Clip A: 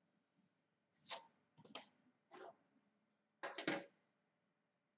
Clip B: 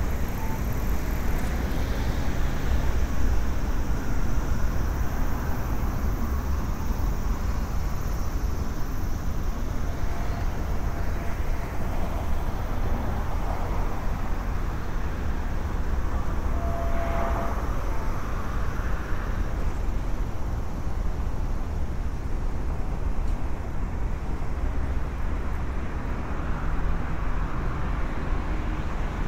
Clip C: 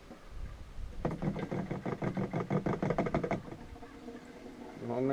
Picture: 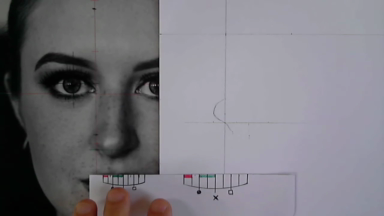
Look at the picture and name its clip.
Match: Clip A